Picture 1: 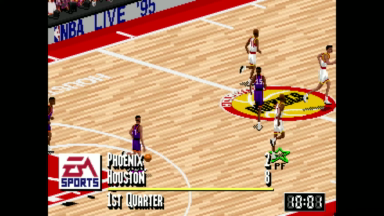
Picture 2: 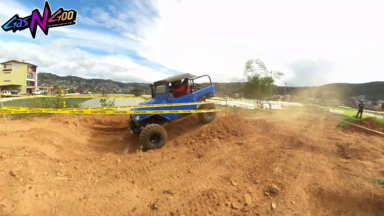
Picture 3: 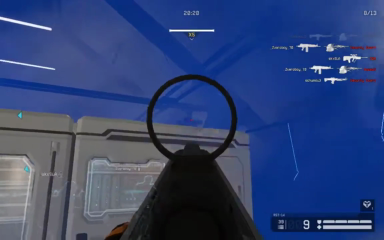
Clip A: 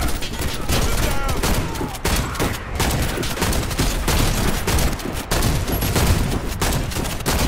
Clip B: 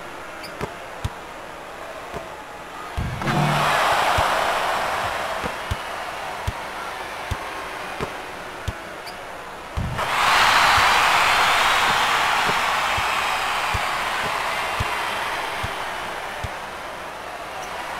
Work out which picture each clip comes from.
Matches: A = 3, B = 1